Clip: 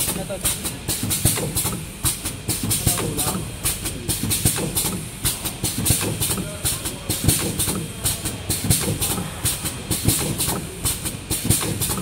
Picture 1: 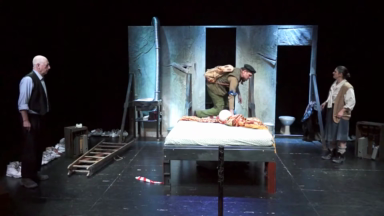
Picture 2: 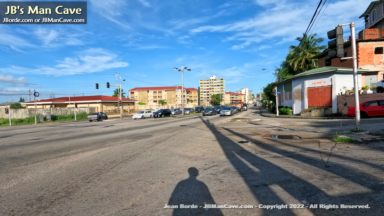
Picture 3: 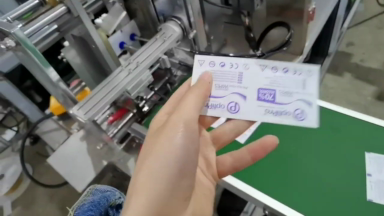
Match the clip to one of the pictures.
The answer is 3